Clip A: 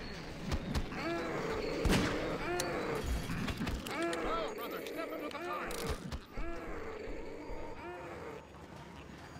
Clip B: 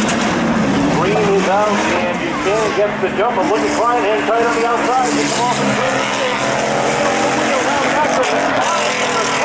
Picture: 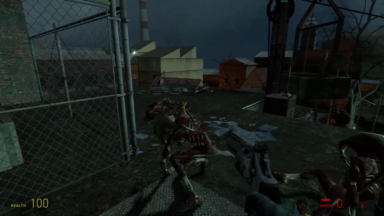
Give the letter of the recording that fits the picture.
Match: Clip A